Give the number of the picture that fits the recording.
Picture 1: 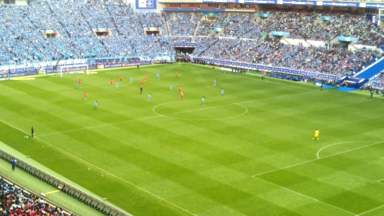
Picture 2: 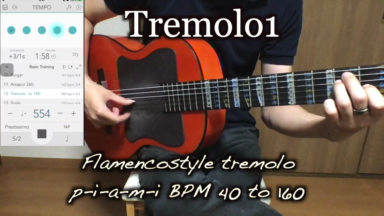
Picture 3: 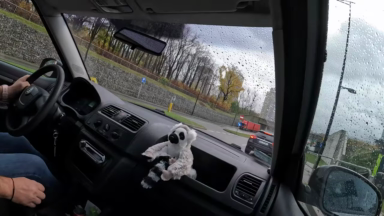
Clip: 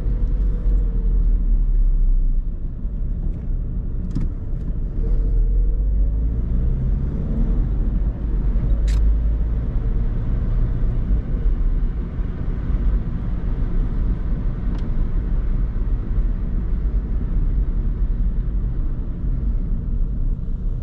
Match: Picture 3